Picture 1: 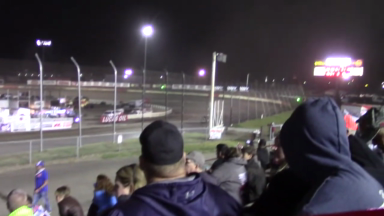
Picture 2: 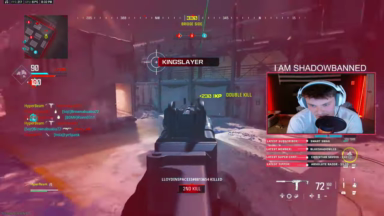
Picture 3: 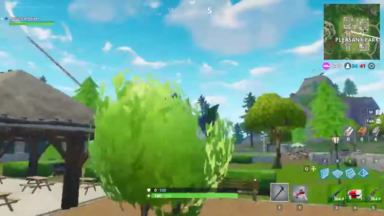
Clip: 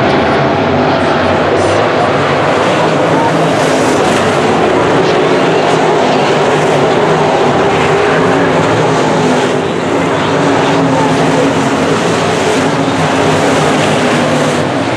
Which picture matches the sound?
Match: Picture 1